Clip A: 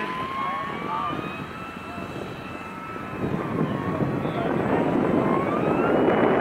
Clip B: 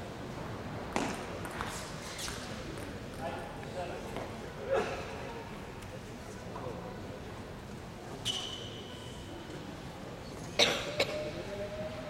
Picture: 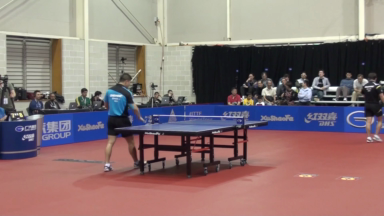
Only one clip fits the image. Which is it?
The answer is B